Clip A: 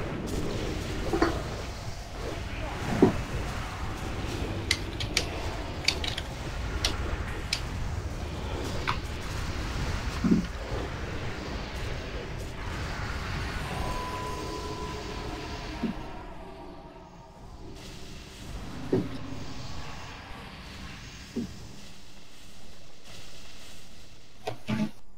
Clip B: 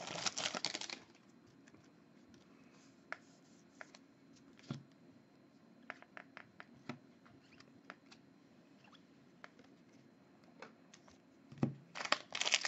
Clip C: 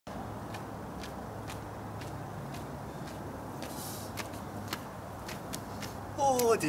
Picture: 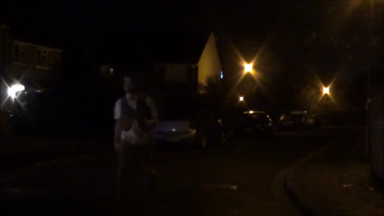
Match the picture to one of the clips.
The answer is C